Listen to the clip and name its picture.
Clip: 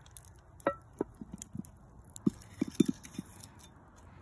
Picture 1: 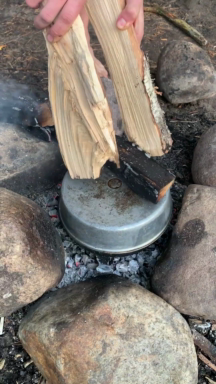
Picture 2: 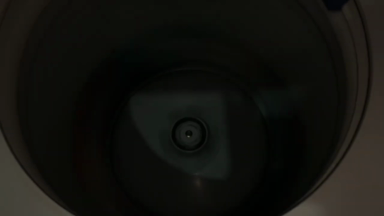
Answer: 1